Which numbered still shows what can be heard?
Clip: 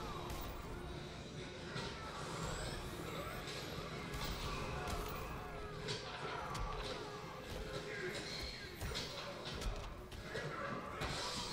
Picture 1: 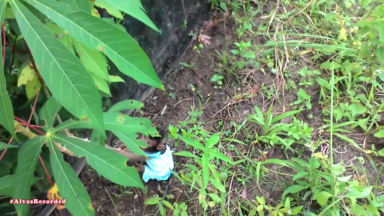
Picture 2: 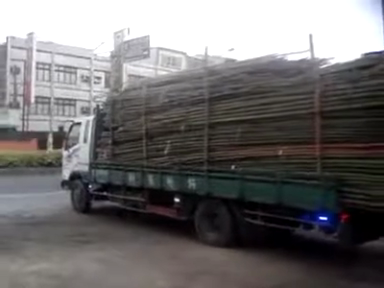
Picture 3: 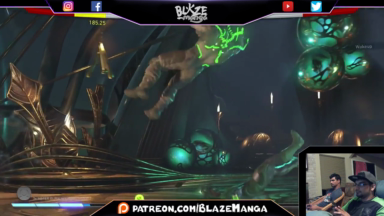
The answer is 3